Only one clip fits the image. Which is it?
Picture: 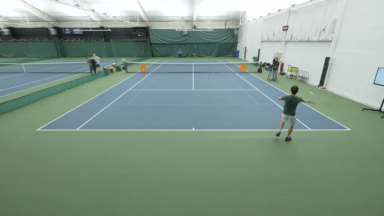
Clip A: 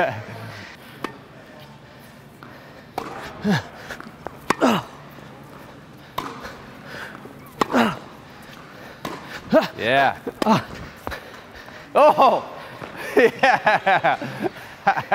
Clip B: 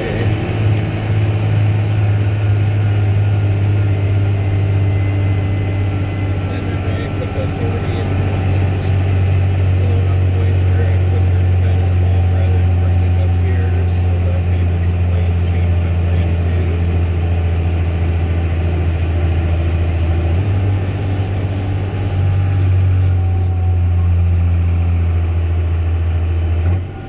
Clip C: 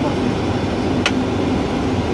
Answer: A